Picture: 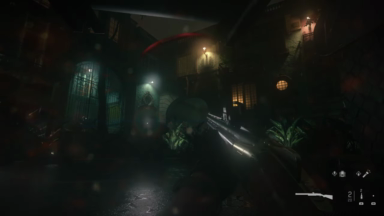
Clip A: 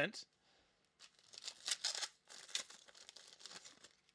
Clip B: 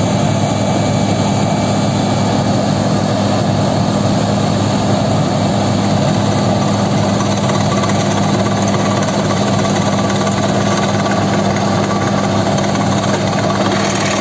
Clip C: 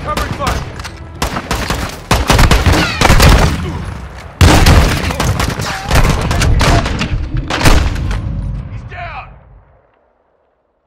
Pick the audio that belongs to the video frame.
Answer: C